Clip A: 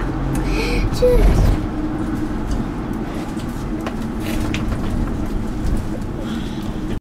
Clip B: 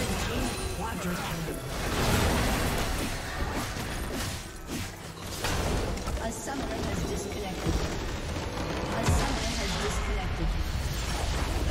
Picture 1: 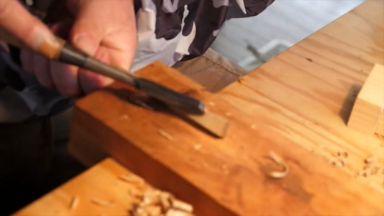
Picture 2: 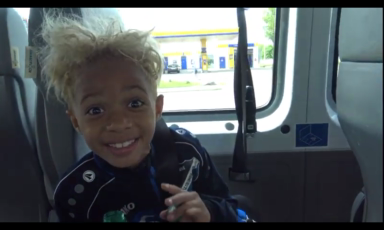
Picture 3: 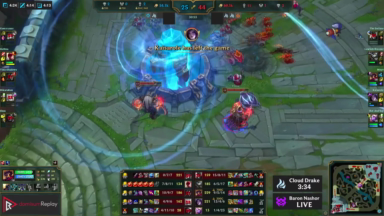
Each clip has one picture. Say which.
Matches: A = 2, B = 3